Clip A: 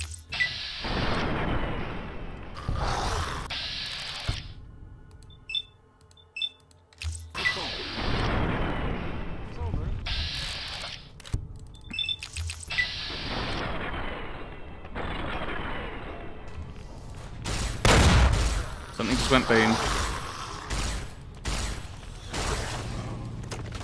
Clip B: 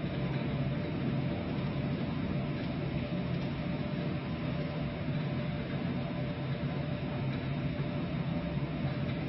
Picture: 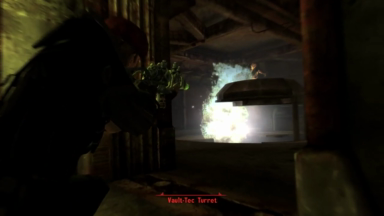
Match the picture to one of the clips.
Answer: A